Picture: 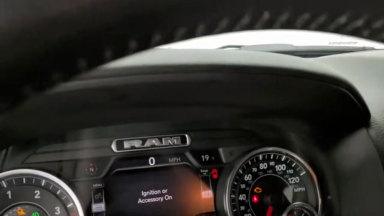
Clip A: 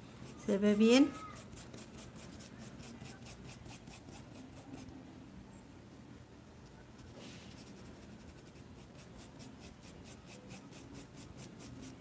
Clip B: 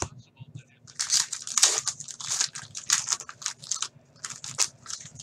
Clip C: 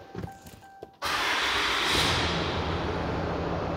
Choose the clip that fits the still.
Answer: C